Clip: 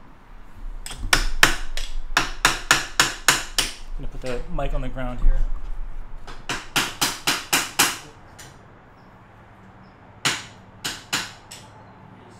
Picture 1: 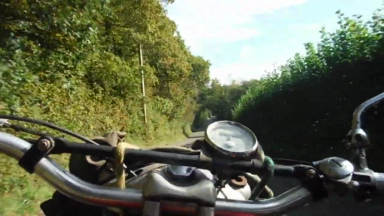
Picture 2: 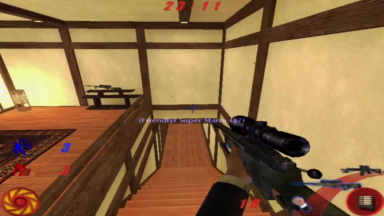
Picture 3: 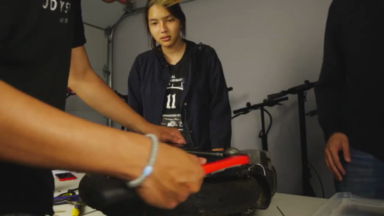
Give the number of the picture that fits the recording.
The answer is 3